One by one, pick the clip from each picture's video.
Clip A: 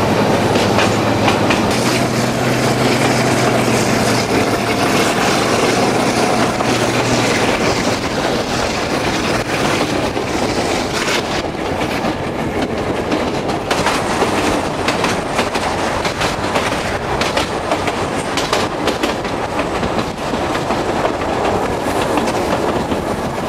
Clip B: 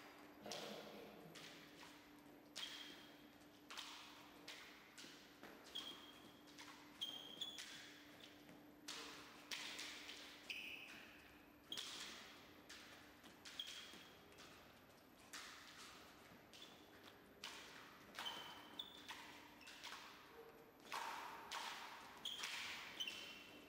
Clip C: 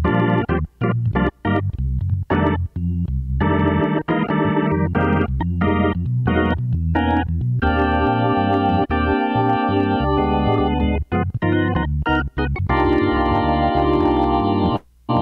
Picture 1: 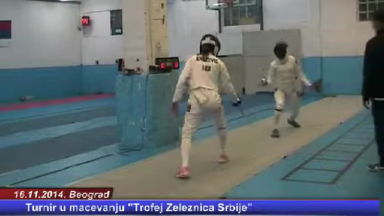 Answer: B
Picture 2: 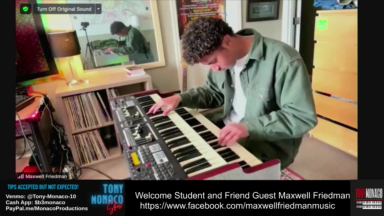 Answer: C